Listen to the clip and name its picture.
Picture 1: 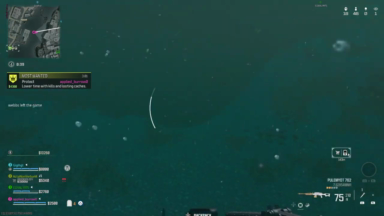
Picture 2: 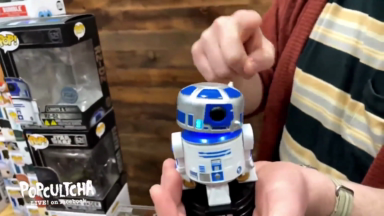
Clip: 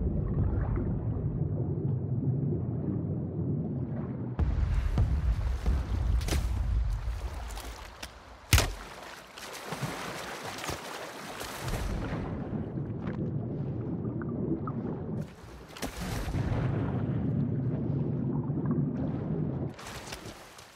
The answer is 1